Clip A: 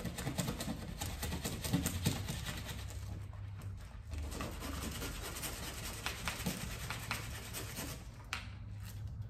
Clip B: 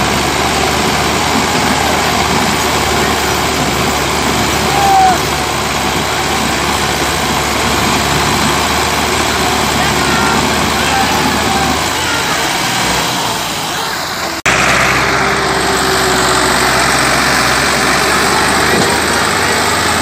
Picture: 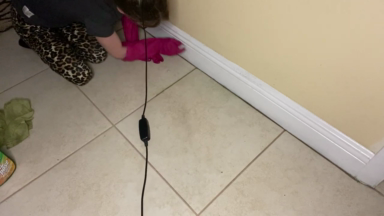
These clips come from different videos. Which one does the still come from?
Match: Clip A